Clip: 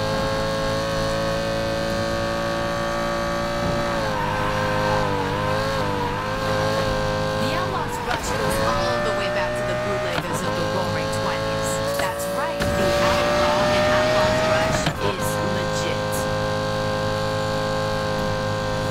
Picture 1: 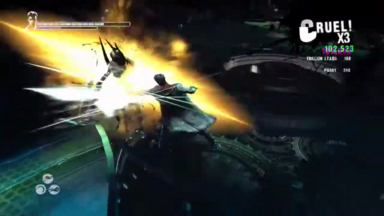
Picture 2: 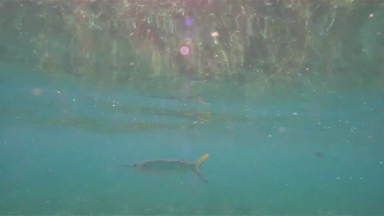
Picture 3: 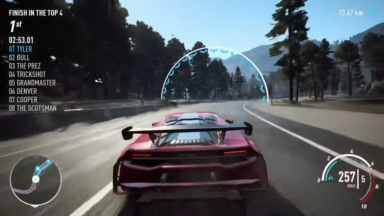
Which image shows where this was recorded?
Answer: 3